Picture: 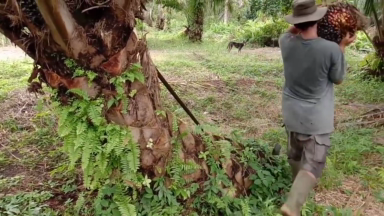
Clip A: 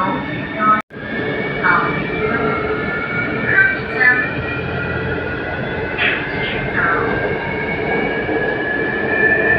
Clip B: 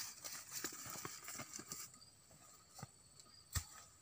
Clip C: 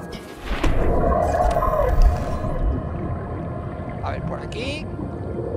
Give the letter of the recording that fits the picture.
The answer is B